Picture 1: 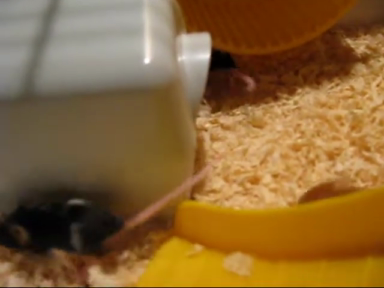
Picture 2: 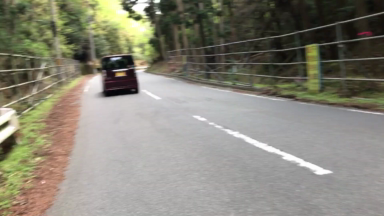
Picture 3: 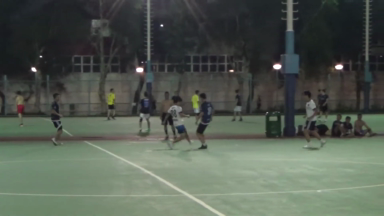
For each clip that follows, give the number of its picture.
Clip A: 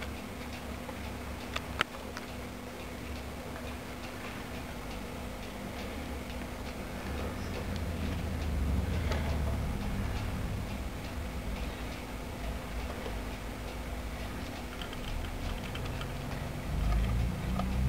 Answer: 1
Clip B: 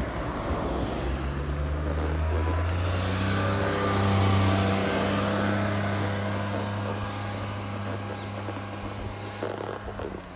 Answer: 2